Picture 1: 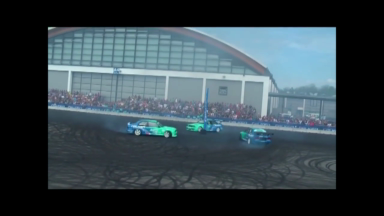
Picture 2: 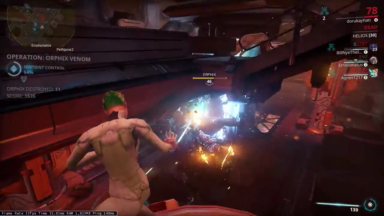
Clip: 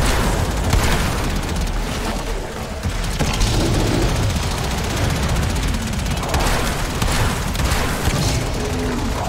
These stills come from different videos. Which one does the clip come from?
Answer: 2